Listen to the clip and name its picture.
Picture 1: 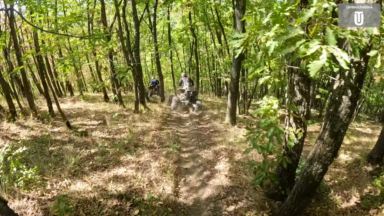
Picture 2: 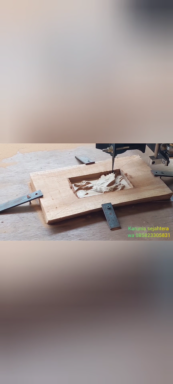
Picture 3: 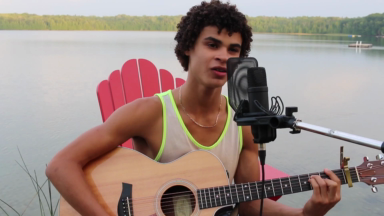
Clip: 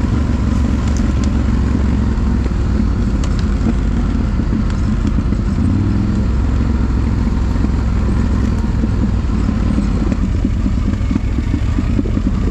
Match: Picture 1